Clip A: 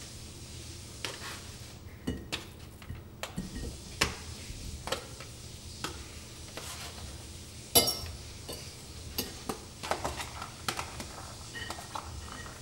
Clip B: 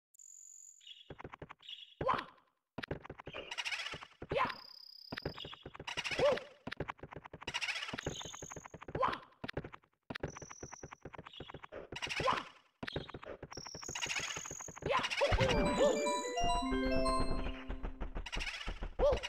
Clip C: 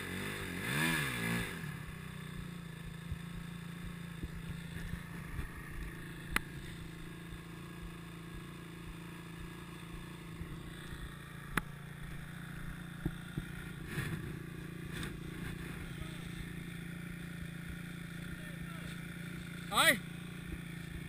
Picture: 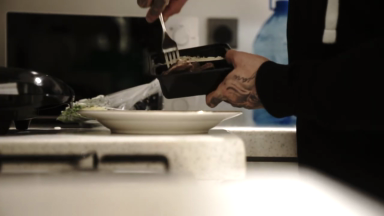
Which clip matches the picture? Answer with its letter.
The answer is A